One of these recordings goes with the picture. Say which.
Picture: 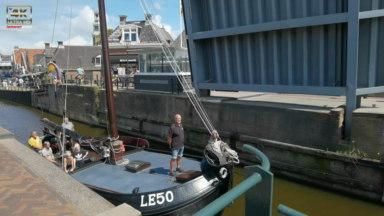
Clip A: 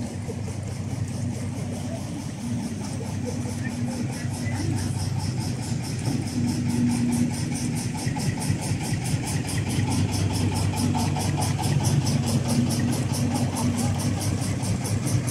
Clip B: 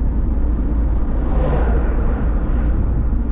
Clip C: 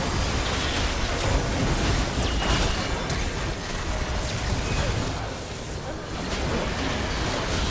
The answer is A